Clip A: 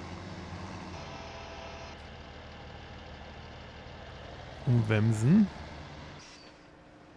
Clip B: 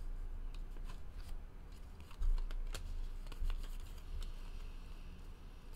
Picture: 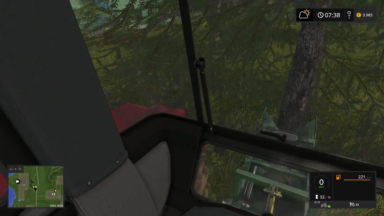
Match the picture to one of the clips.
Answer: A